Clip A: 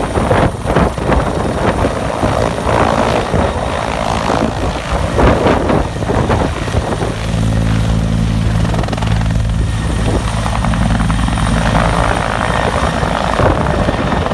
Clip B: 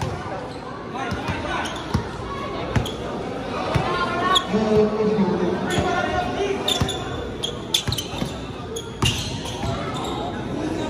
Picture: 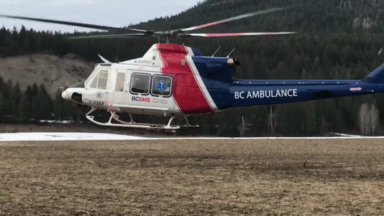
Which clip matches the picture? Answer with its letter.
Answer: A